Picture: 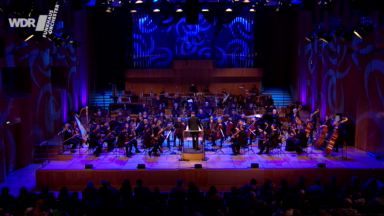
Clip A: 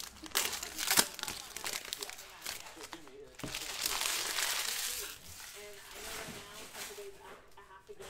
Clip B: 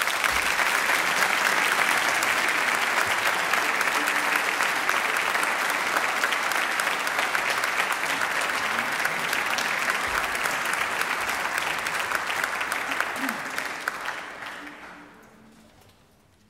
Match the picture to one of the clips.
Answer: B